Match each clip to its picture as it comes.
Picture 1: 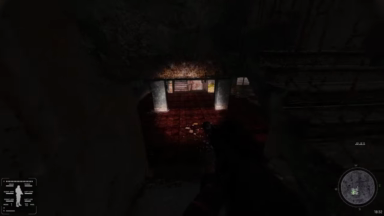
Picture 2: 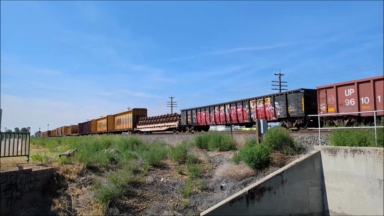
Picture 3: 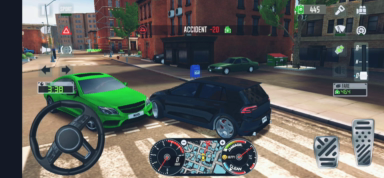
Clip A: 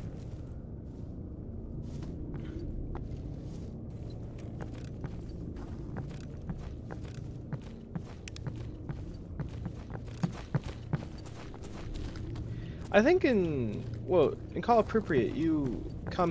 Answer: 1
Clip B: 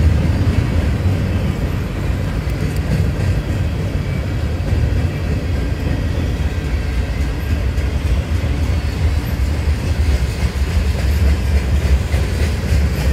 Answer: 2